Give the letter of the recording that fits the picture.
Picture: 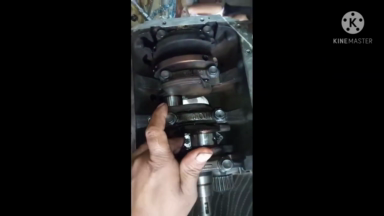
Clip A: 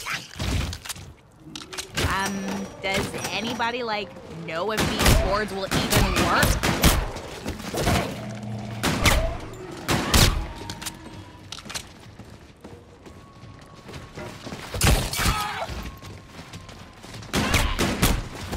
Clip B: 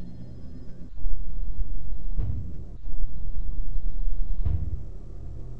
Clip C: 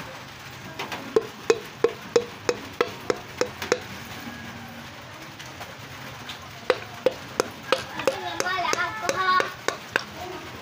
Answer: C